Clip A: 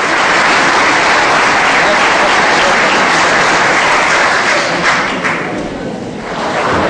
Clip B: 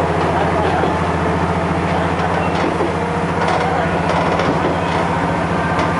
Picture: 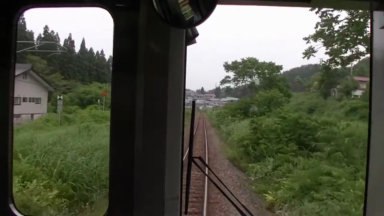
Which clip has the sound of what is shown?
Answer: B